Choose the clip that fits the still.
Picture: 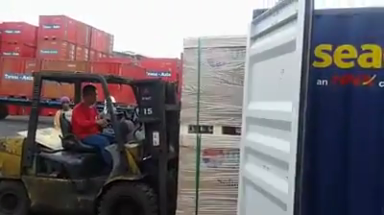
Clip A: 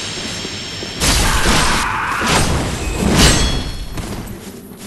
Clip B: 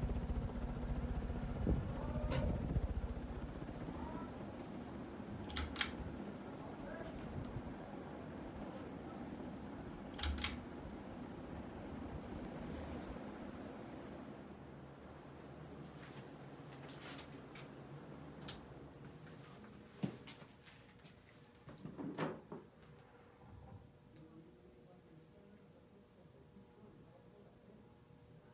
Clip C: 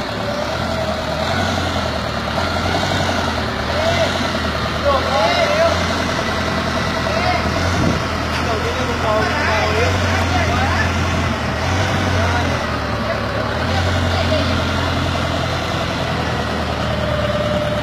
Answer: C